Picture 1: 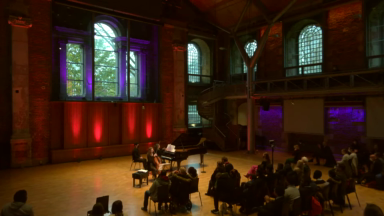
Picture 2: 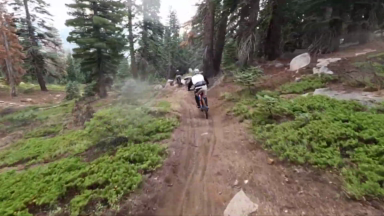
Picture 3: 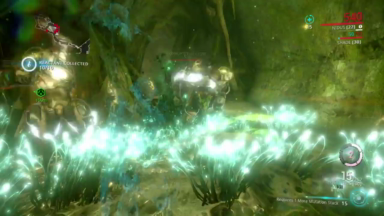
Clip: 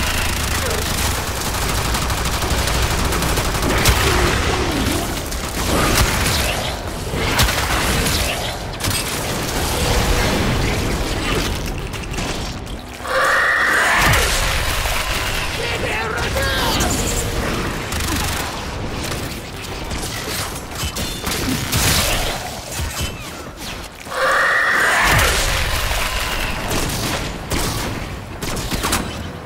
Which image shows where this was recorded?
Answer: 3